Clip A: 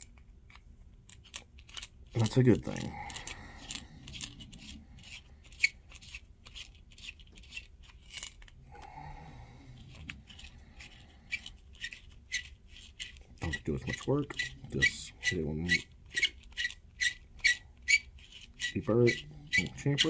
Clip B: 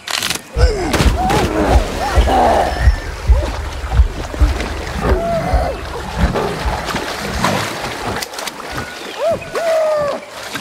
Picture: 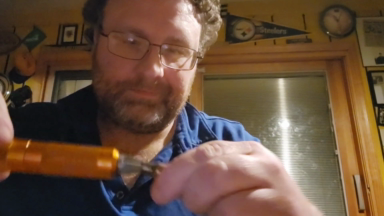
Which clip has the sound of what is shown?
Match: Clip A